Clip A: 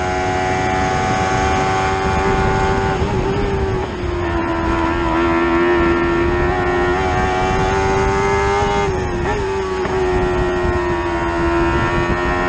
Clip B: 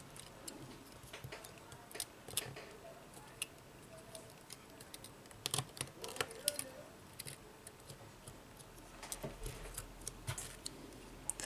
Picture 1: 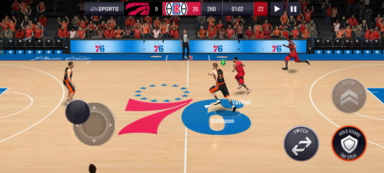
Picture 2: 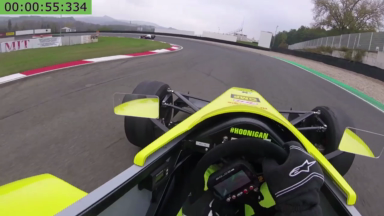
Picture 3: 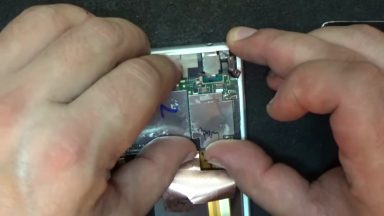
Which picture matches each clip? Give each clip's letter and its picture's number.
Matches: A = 2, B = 3